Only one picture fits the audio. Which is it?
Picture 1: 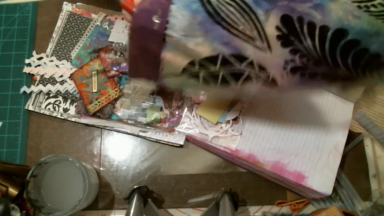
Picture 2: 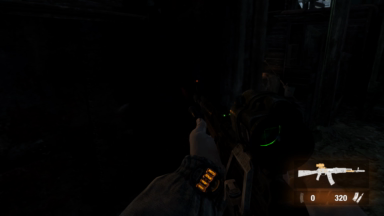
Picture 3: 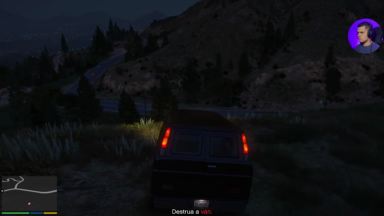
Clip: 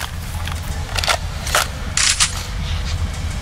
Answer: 2